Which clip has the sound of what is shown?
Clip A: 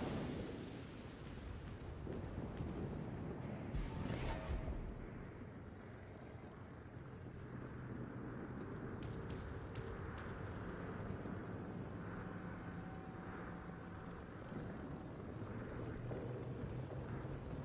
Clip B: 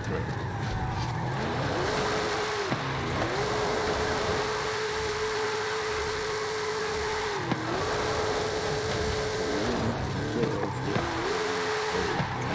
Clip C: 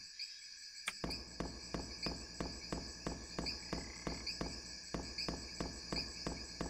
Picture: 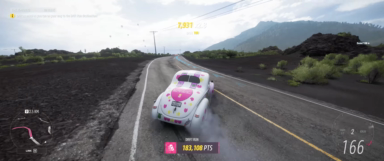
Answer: B